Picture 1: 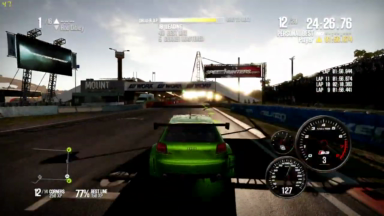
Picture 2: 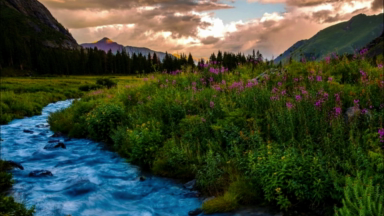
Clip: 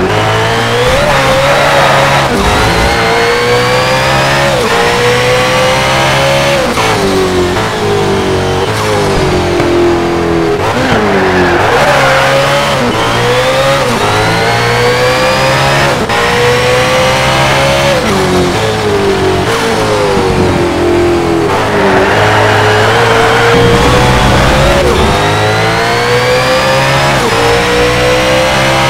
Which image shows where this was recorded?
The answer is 1